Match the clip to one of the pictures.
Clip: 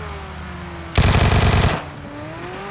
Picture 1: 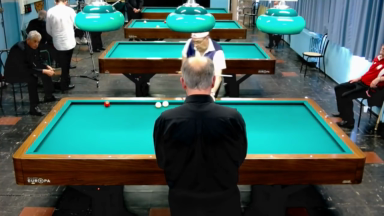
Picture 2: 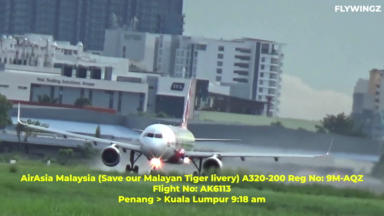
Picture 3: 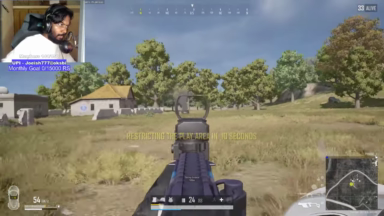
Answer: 3